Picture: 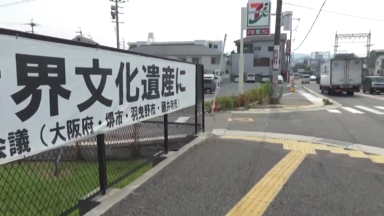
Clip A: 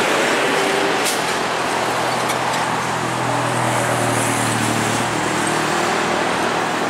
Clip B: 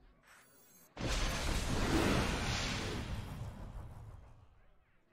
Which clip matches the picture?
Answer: A